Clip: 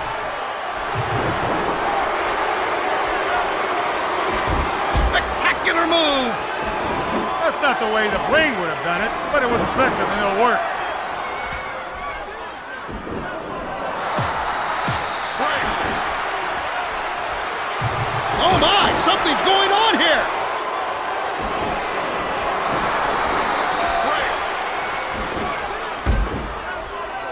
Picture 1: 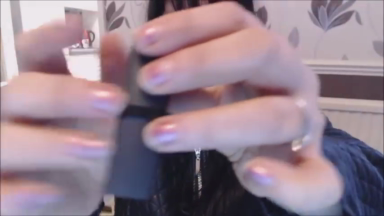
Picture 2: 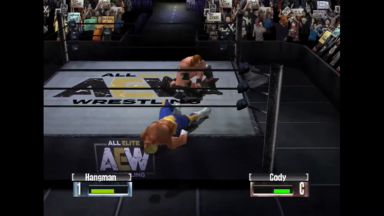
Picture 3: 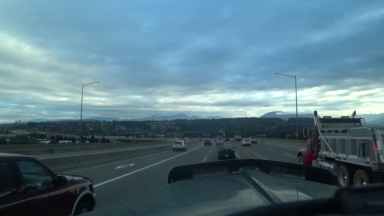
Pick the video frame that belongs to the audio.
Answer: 2